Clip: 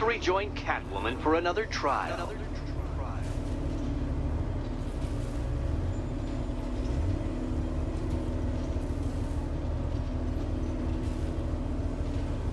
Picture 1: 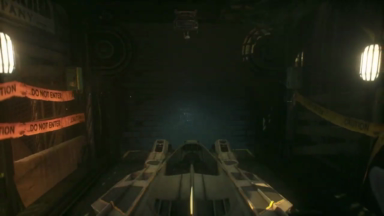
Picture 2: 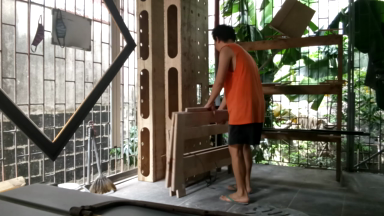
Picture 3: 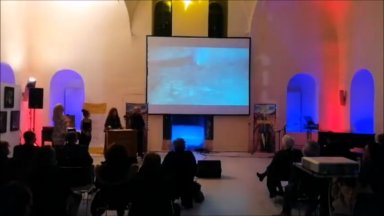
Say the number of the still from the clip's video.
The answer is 1